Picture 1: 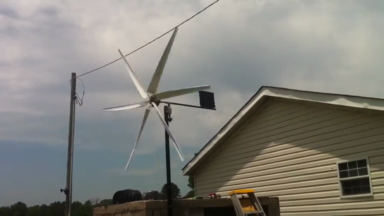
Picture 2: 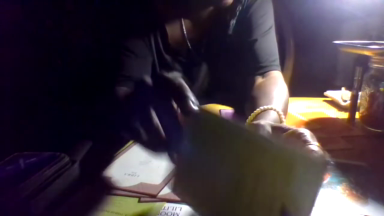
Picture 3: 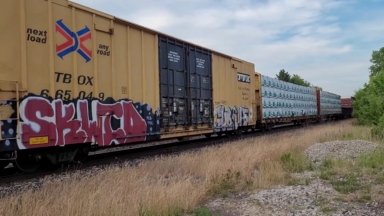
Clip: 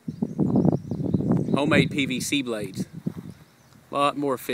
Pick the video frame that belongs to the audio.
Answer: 1